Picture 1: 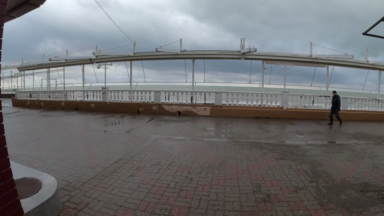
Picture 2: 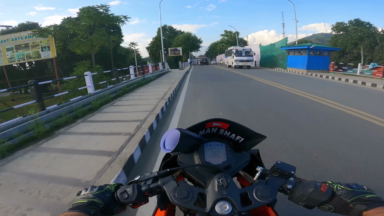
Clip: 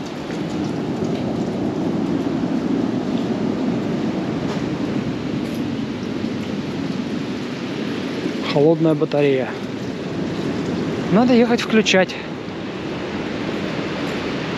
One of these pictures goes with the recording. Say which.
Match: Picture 1